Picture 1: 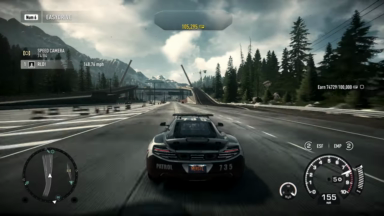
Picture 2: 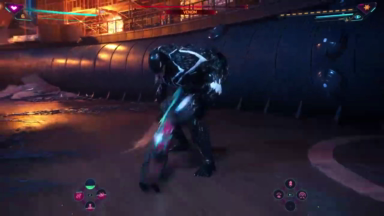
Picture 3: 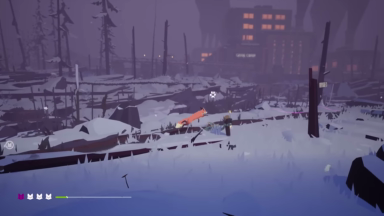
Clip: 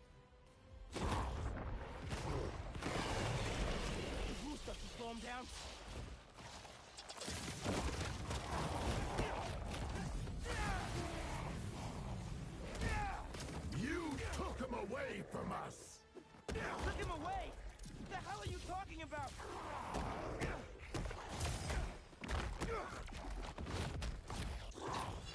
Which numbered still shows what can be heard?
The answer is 2